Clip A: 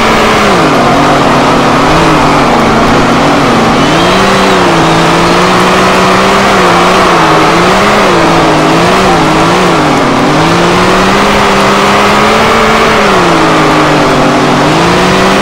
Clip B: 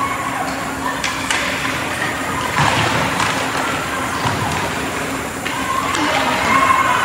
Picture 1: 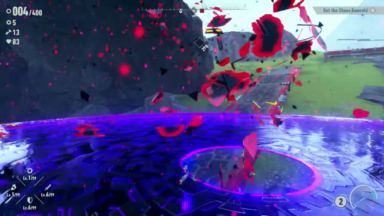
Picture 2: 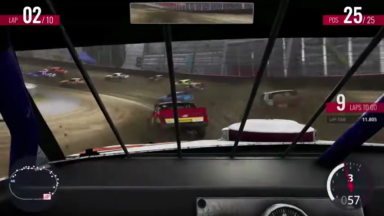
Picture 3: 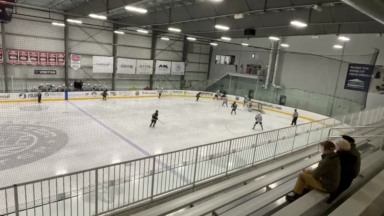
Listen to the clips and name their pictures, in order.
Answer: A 2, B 3